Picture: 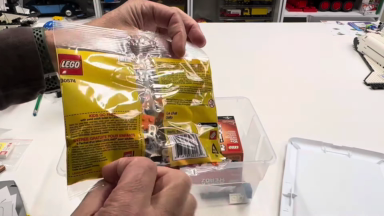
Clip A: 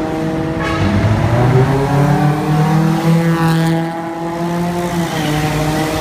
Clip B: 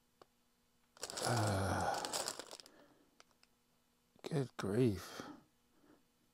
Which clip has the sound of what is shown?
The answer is B